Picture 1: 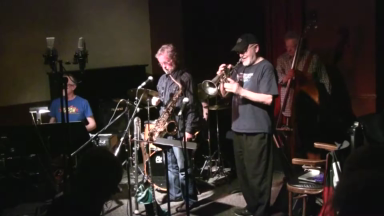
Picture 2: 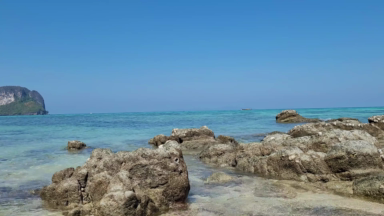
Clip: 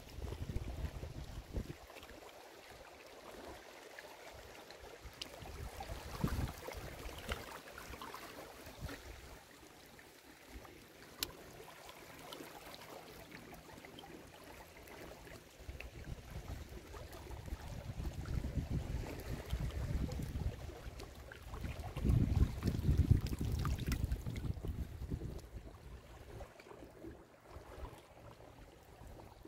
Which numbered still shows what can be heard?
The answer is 2